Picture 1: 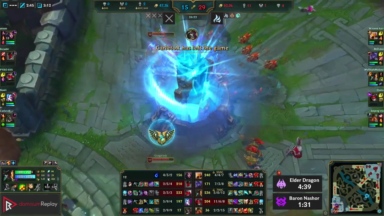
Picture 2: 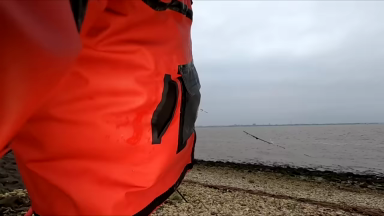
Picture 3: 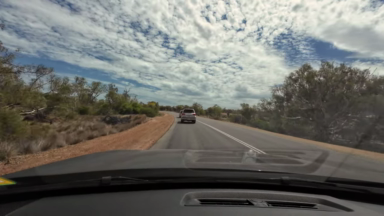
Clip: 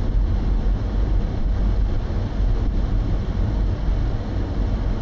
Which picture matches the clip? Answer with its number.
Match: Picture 3